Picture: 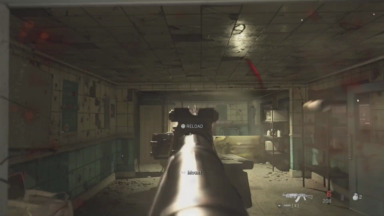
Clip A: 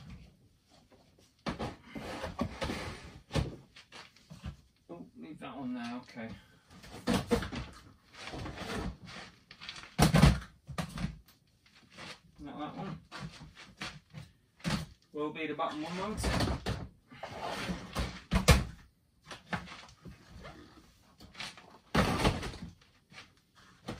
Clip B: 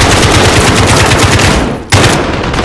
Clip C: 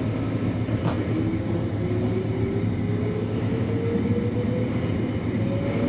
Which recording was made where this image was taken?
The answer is B